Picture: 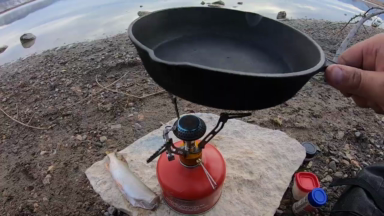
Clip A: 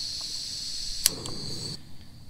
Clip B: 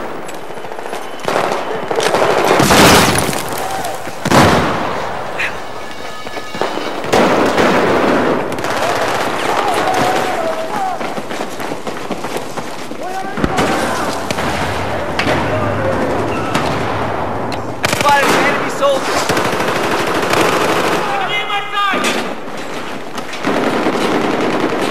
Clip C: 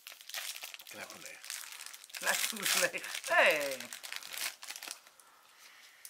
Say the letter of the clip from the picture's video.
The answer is A